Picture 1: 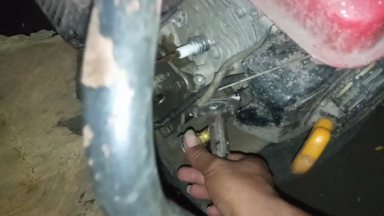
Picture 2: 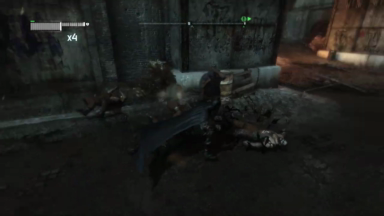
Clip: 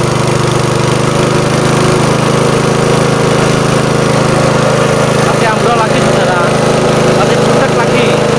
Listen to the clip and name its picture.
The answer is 1